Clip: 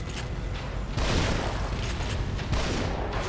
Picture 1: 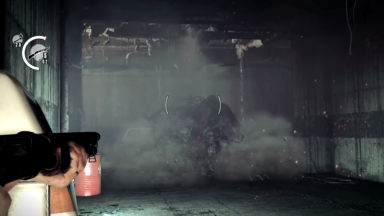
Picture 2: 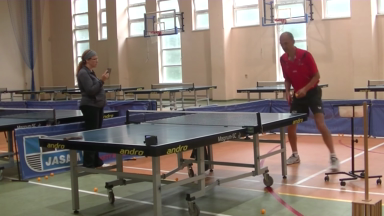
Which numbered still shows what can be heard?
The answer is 1